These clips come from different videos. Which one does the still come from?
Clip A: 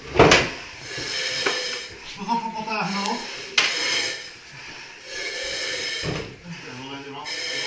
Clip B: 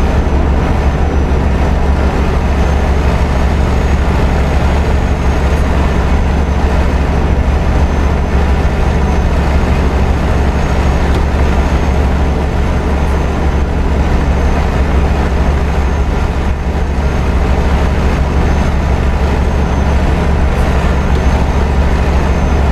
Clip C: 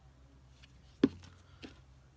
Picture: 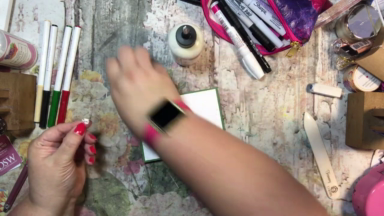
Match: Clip C